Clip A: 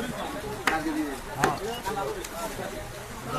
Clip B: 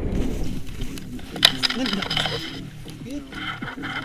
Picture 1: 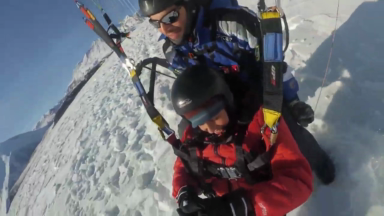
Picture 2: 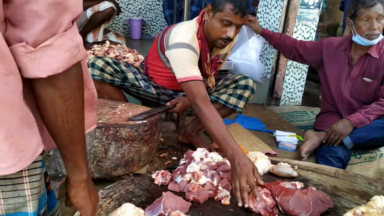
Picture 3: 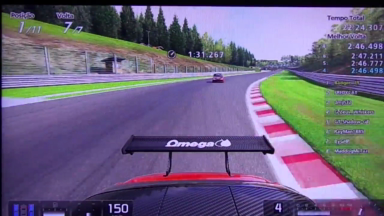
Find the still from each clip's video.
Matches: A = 2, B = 1